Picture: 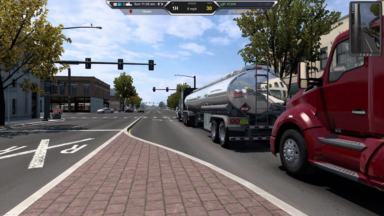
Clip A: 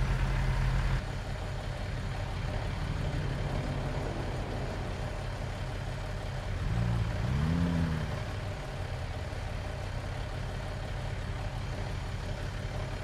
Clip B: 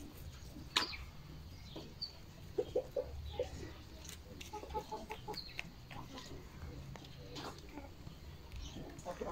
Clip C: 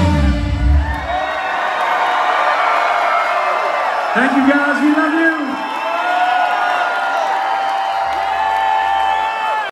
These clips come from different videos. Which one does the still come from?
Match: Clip A